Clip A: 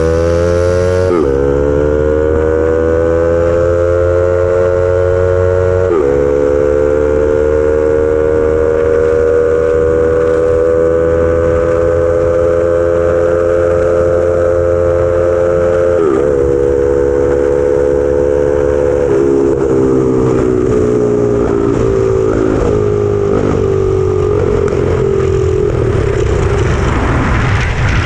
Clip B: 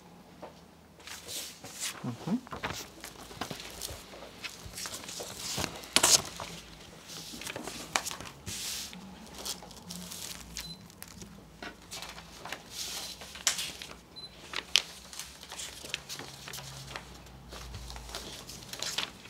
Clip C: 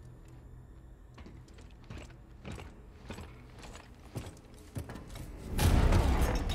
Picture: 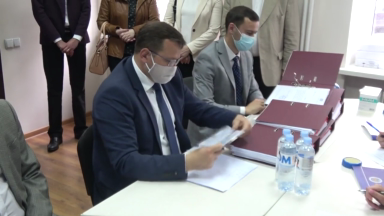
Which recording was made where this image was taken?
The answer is B